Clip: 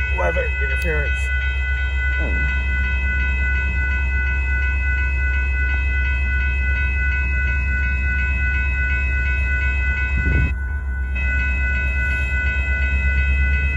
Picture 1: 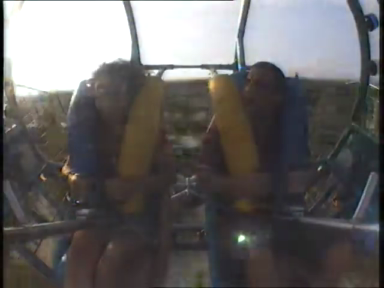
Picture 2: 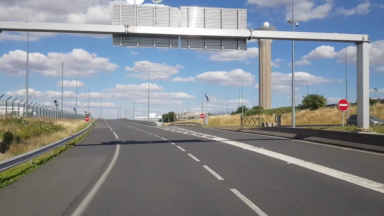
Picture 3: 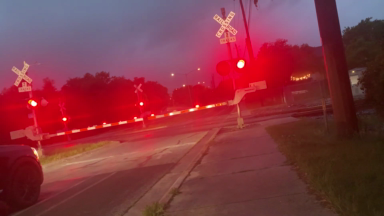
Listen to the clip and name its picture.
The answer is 3